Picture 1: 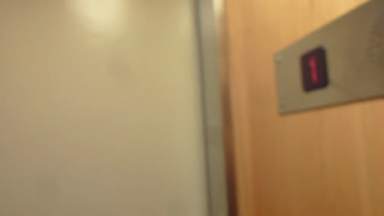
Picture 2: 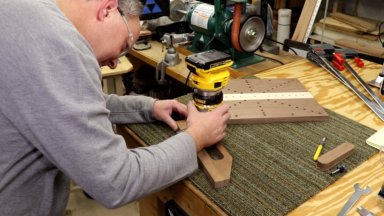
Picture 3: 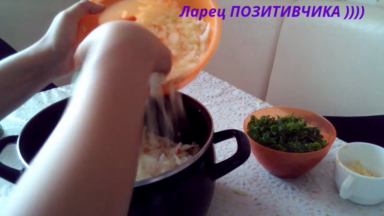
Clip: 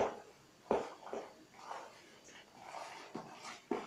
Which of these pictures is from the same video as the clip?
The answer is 3